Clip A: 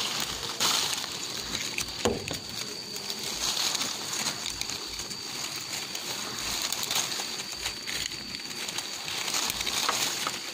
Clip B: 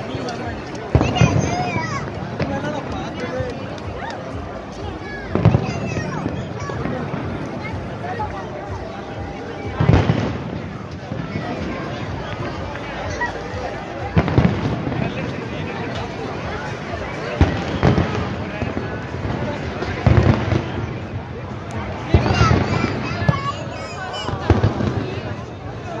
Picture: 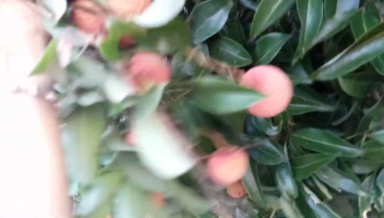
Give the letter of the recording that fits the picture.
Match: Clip A